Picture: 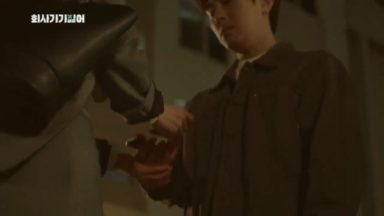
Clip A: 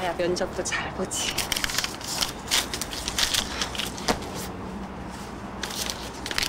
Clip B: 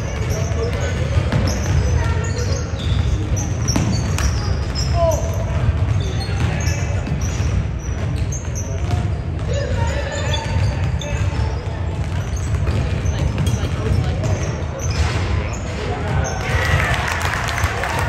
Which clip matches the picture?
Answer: A